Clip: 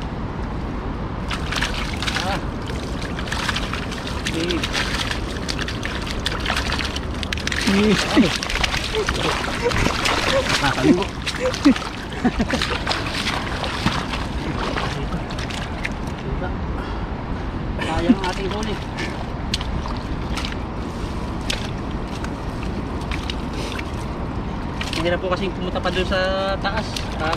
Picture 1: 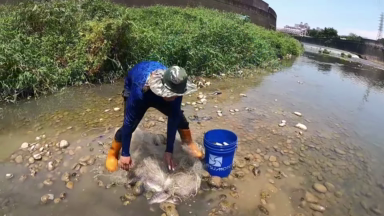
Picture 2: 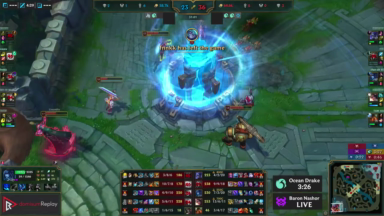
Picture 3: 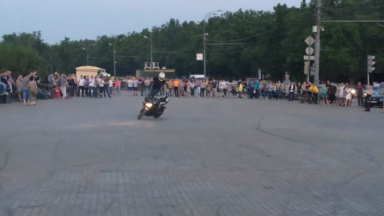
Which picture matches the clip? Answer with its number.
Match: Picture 1